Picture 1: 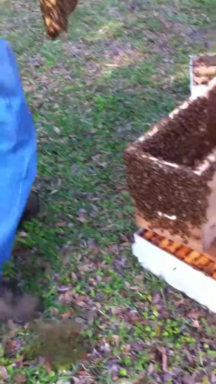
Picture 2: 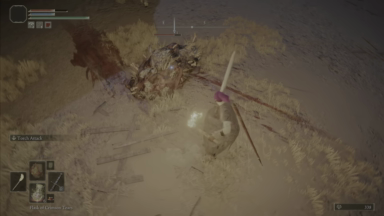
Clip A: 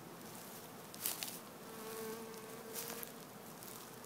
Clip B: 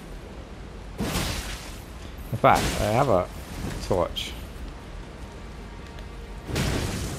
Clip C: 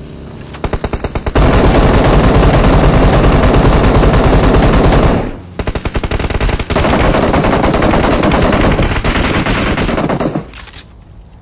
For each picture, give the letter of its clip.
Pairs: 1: A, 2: B